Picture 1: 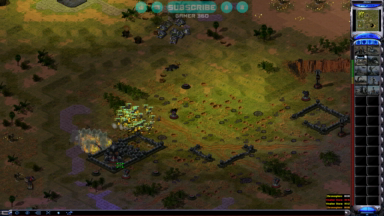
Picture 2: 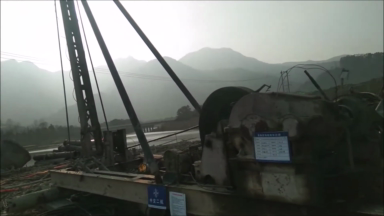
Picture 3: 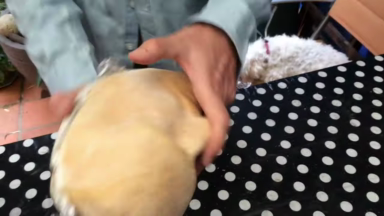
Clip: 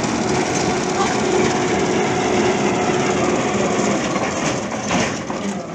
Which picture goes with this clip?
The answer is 2